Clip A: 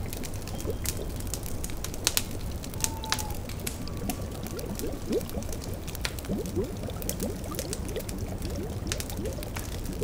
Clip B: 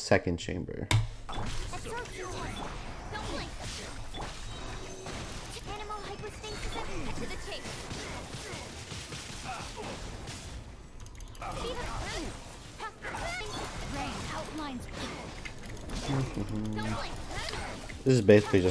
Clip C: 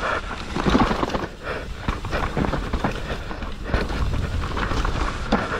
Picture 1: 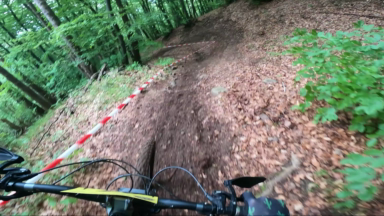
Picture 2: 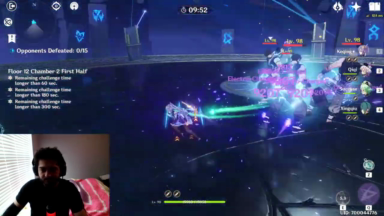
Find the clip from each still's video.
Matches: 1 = C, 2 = B